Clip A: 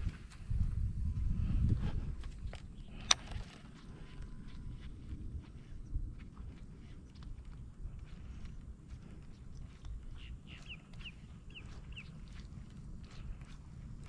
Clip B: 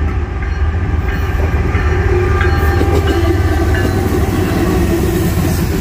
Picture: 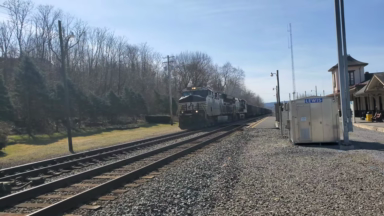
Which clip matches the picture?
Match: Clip B